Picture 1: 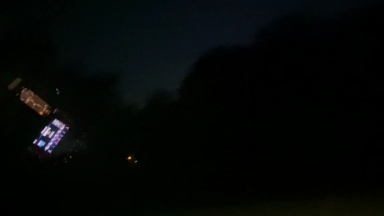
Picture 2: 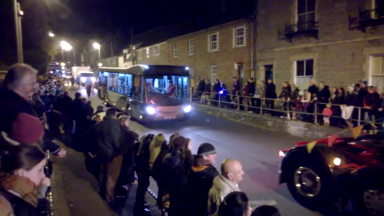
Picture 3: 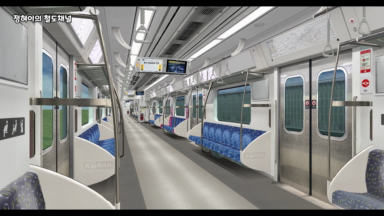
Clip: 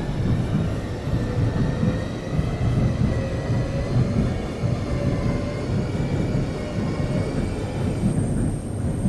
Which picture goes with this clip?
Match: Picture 3